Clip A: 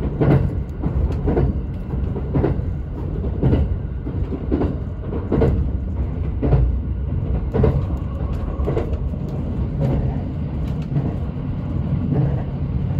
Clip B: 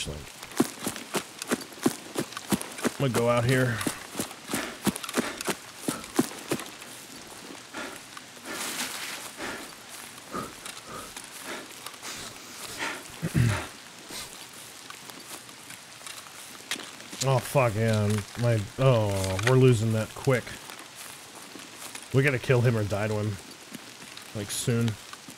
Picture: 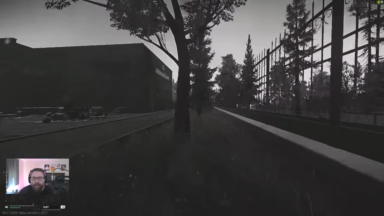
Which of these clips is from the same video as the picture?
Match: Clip B